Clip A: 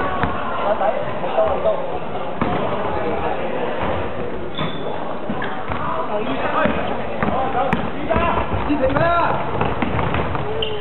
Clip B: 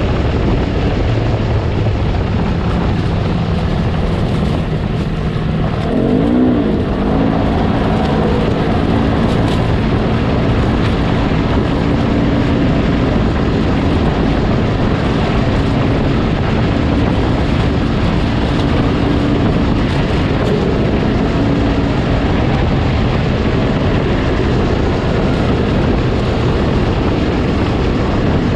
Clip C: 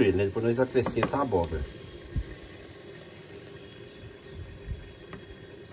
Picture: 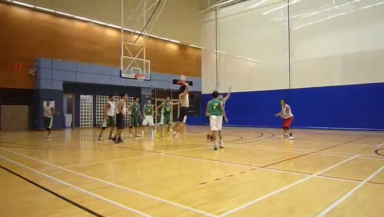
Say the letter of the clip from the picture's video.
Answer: A